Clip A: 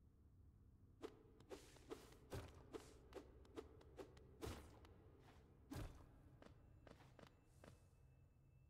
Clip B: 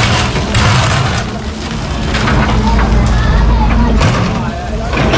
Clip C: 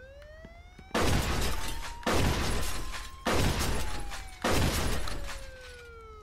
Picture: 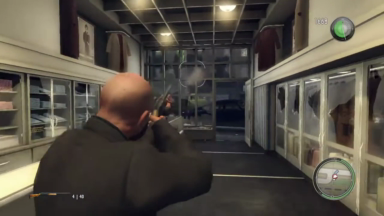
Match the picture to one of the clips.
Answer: C